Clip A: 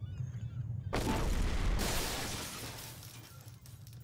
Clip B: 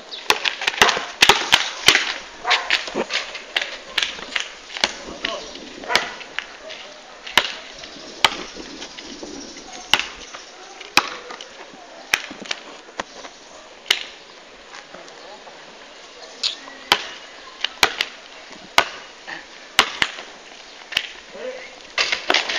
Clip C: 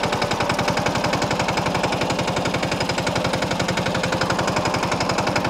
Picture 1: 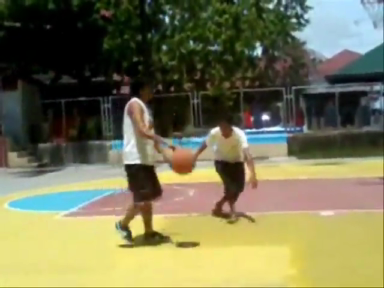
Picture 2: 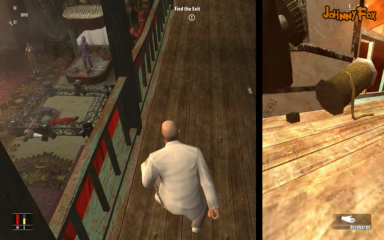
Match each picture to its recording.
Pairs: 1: B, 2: A